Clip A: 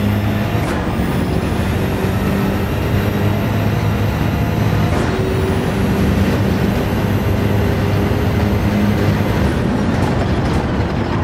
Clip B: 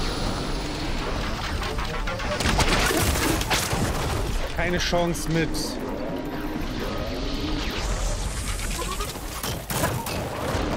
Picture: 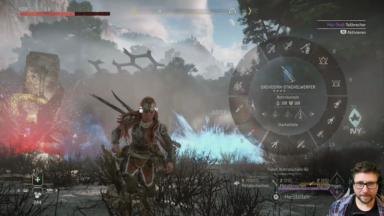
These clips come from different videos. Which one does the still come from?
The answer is B